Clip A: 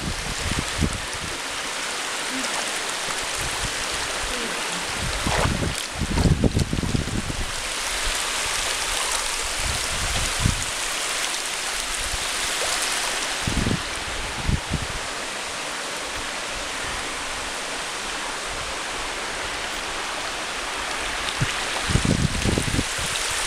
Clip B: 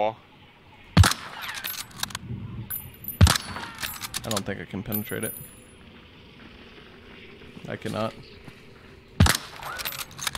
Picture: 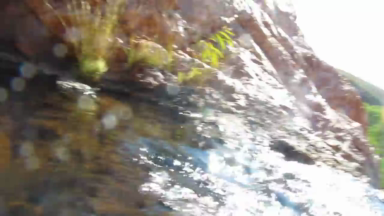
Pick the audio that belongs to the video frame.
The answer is A